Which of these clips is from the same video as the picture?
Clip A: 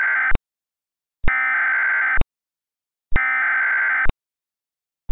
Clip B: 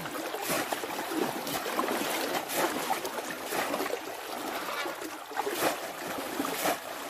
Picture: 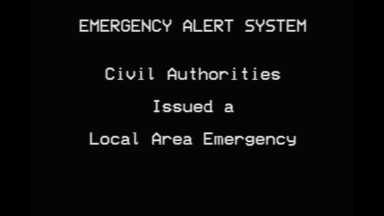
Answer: A